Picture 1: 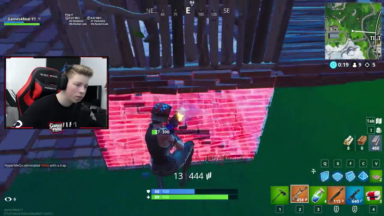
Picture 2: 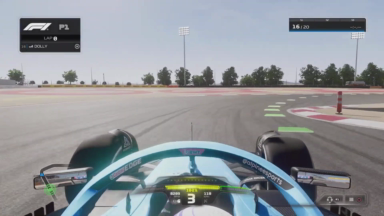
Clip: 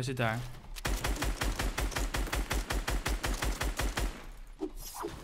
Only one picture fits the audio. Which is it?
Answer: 1